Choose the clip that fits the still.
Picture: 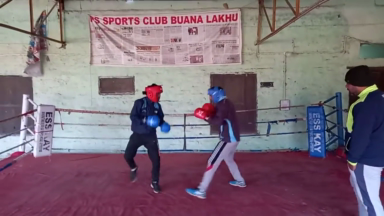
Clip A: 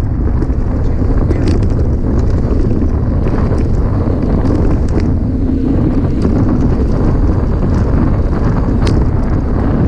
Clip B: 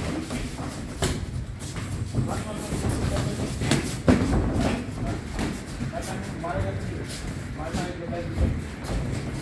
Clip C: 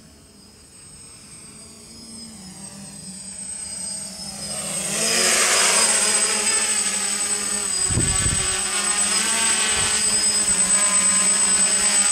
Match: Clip B